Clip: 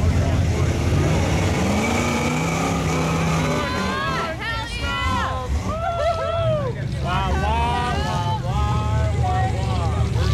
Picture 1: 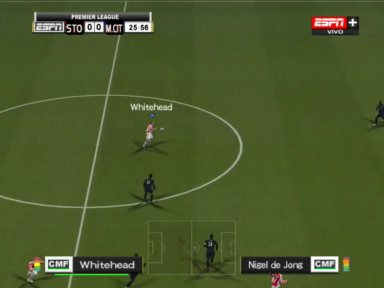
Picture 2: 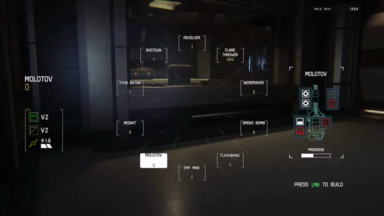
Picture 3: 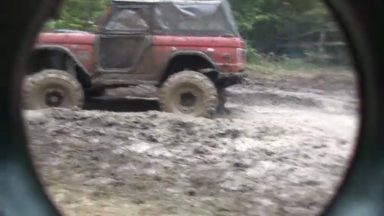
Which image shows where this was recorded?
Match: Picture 3